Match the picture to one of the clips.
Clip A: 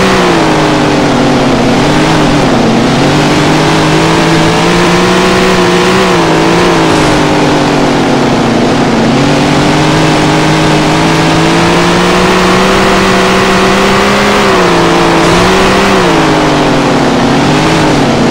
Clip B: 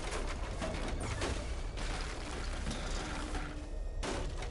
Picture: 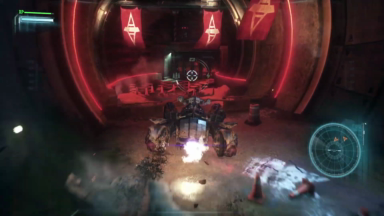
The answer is B